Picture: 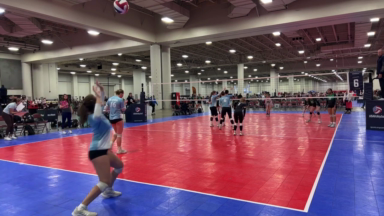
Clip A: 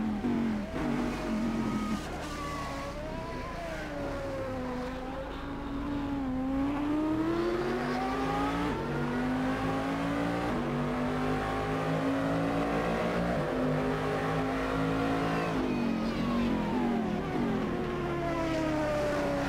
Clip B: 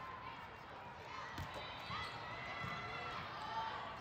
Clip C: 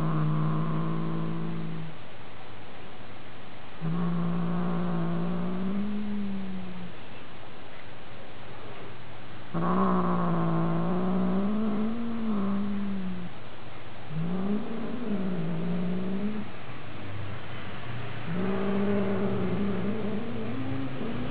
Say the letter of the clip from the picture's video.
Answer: B